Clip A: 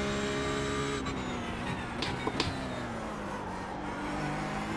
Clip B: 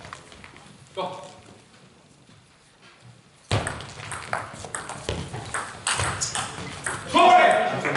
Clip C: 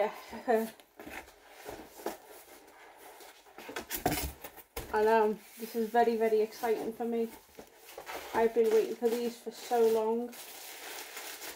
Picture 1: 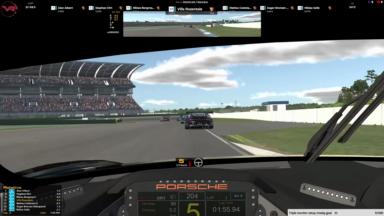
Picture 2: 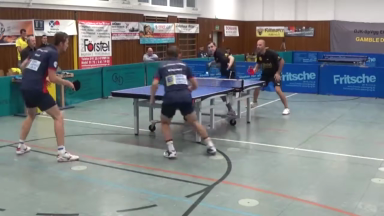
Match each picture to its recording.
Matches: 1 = A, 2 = B